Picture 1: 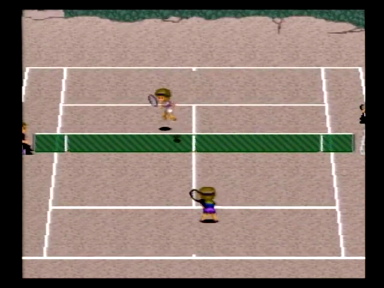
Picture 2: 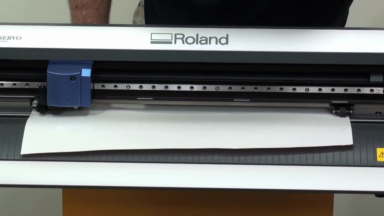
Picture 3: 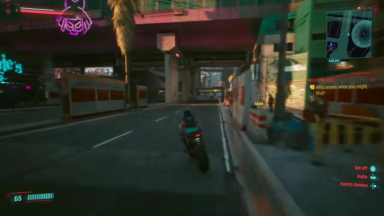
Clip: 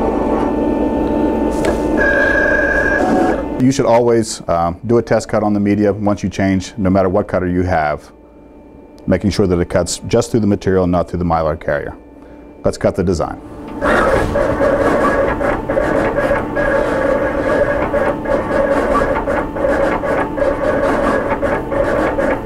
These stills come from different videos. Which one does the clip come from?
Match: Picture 2